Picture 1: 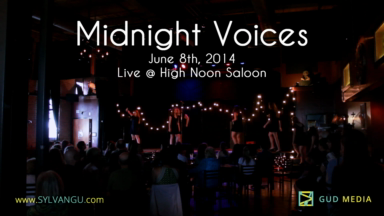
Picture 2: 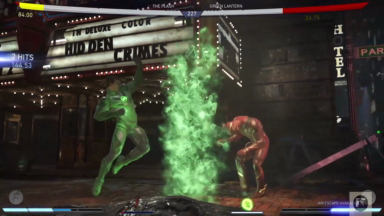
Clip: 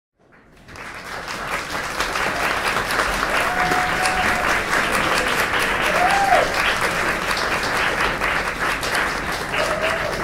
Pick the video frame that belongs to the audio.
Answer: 1